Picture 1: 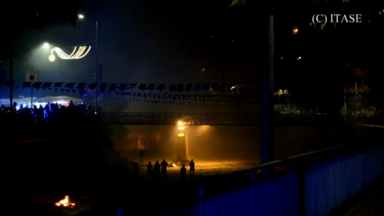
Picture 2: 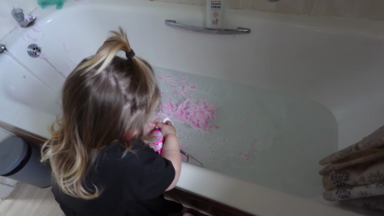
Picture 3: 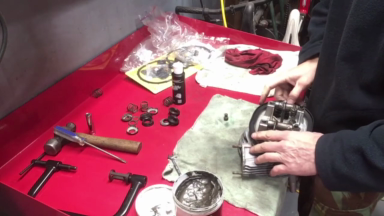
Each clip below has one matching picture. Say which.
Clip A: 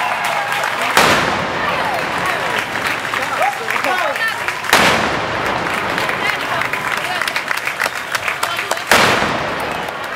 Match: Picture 1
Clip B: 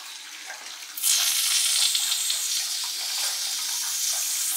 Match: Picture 2